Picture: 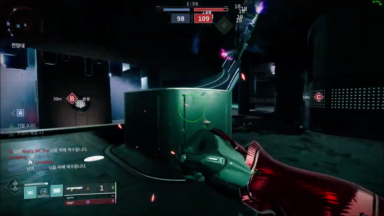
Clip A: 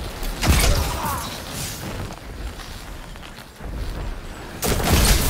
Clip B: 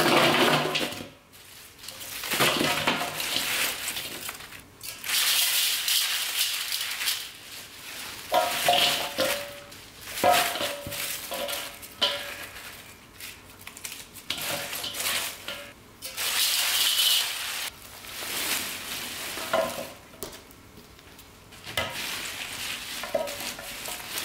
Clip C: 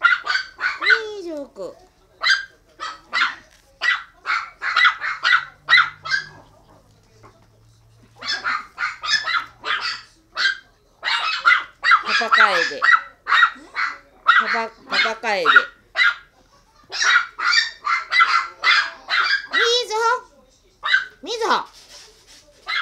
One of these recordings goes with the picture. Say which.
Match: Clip A